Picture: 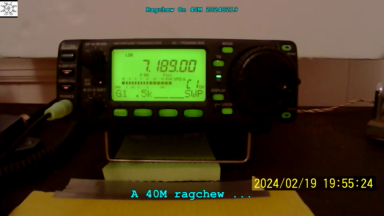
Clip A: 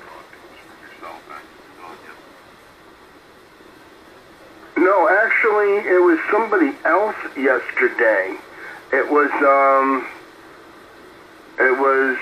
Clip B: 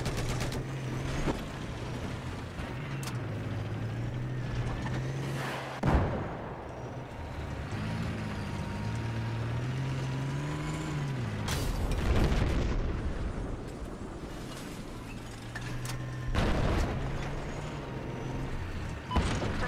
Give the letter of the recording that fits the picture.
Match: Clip A